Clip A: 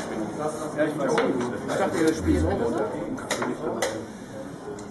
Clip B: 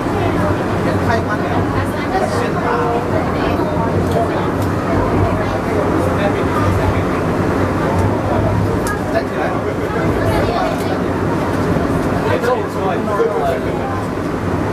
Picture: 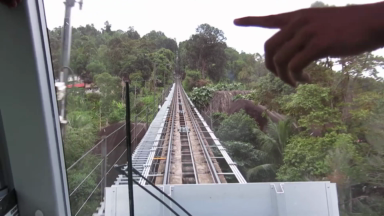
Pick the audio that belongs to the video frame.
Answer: B